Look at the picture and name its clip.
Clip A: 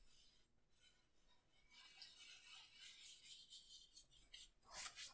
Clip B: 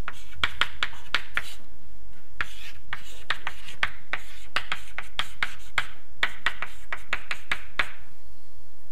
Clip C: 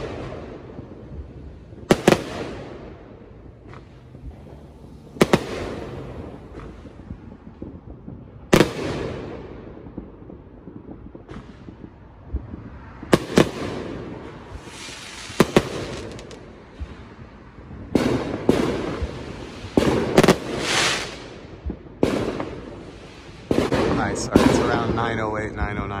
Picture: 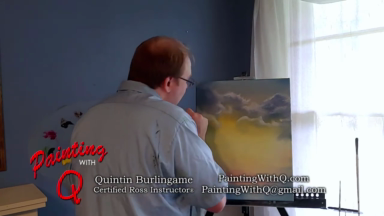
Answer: A